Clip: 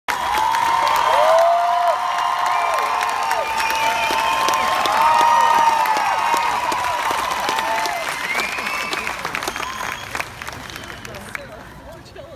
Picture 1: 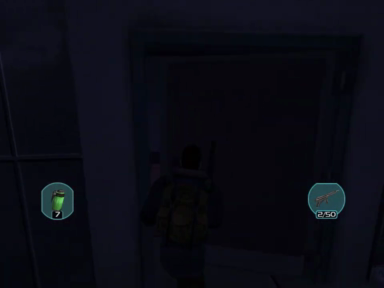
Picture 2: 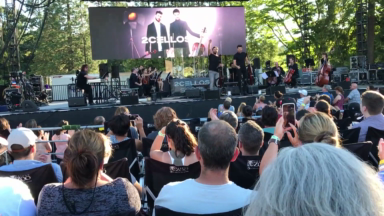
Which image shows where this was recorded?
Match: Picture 2